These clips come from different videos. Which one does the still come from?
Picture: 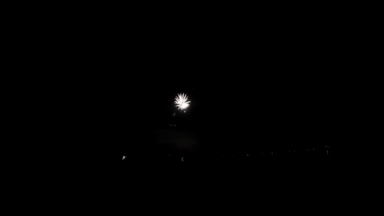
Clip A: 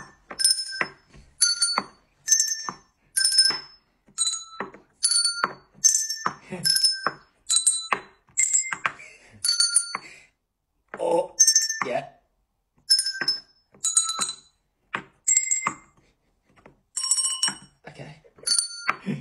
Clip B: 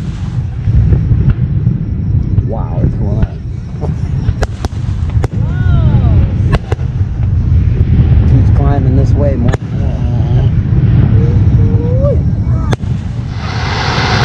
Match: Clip B